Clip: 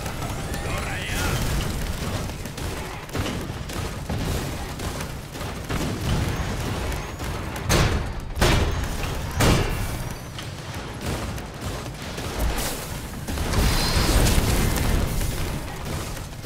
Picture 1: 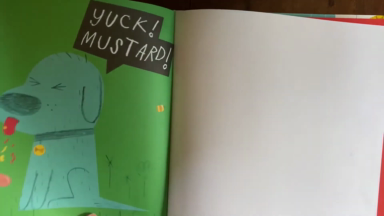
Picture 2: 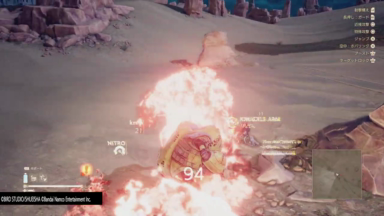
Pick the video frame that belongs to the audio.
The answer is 2